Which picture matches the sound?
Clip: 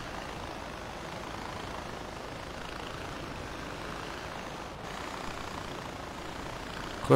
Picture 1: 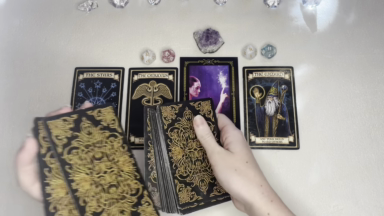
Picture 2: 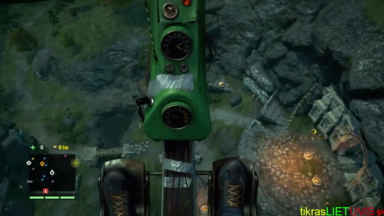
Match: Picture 2